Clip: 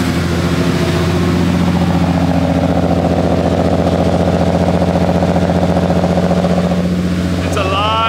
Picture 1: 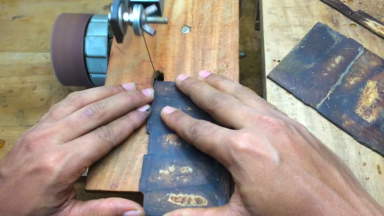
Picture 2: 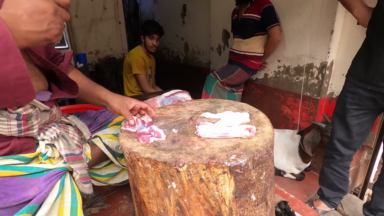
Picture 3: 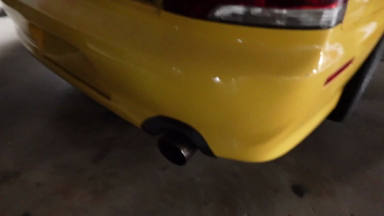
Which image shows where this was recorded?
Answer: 3